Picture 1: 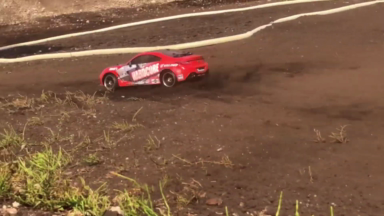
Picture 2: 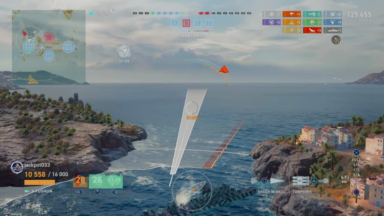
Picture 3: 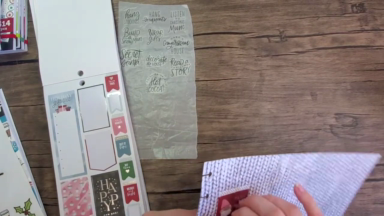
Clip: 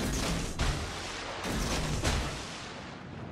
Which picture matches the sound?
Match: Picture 2